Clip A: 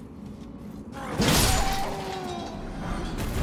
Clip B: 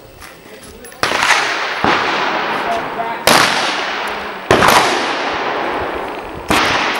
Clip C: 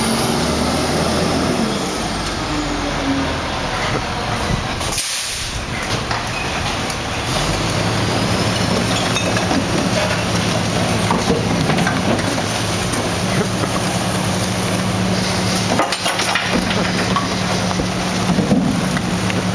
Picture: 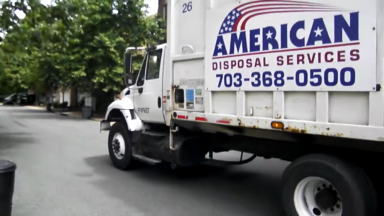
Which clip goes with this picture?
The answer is C